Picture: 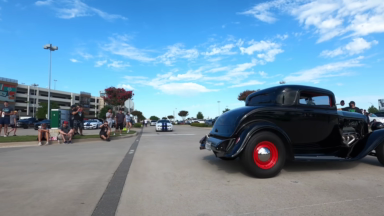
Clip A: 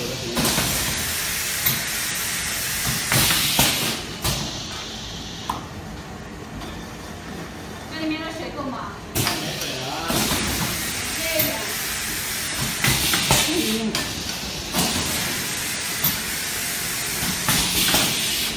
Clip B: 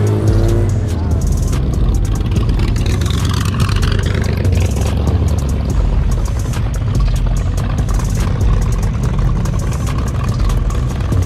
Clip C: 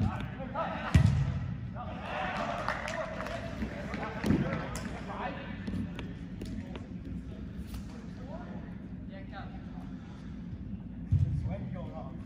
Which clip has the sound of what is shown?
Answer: B